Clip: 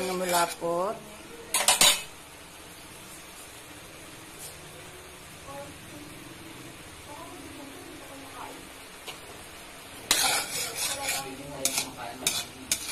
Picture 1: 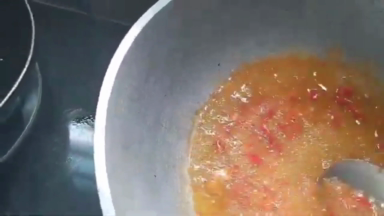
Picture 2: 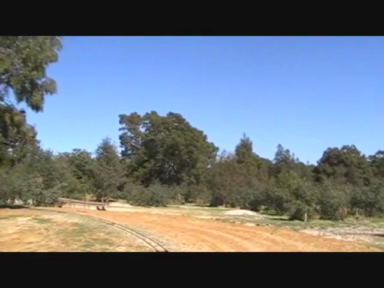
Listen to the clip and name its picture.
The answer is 1